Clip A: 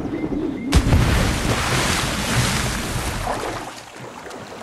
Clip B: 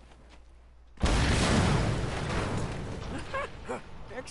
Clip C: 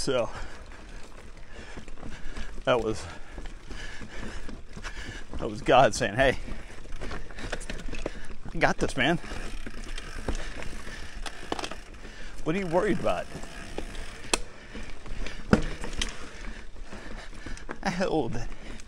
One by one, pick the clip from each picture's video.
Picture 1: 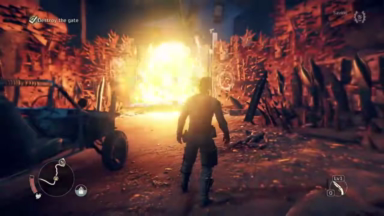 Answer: B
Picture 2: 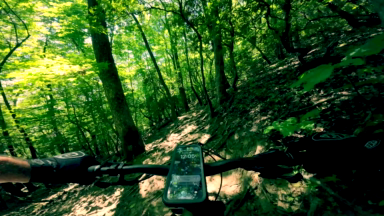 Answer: C